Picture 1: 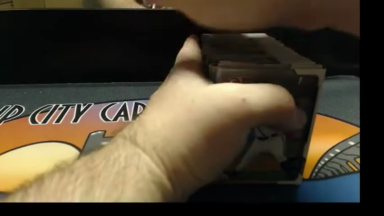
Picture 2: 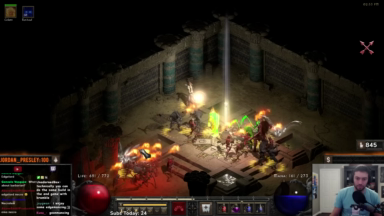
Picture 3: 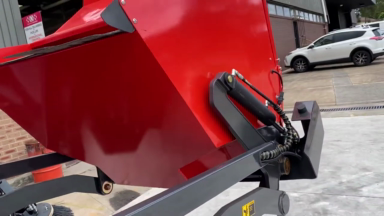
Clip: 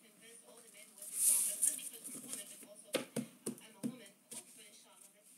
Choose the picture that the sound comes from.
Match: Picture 1